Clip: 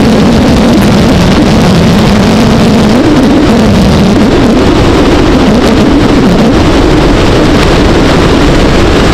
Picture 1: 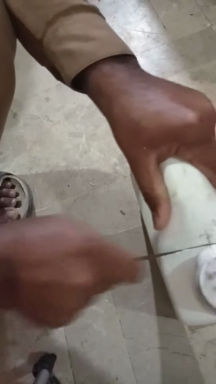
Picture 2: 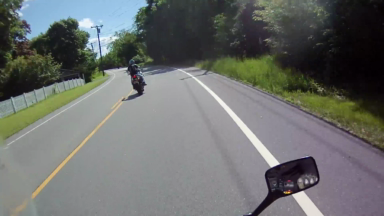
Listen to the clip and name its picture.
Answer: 2